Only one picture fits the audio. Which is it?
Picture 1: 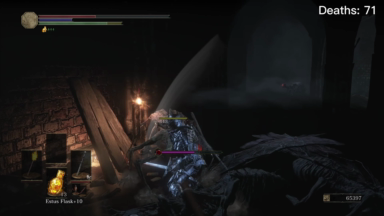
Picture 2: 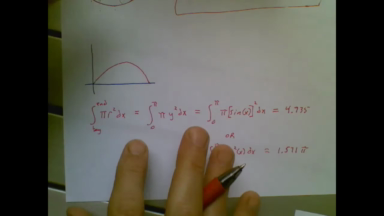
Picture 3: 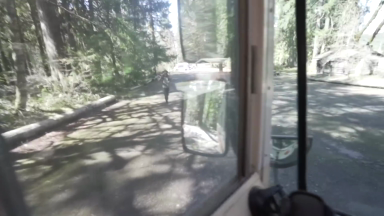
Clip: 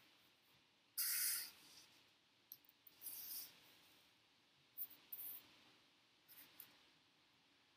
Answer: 2